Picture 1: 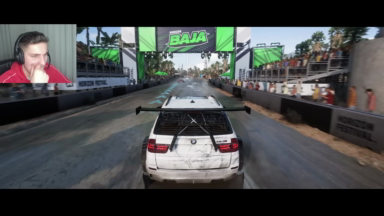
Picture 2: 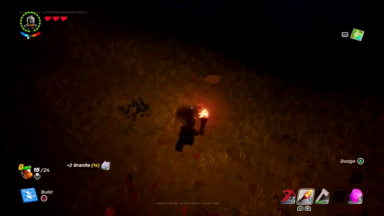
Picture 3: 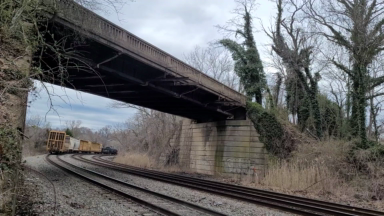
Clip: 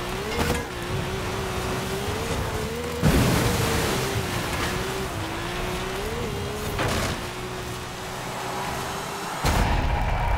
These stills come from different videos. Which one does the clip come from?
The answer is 1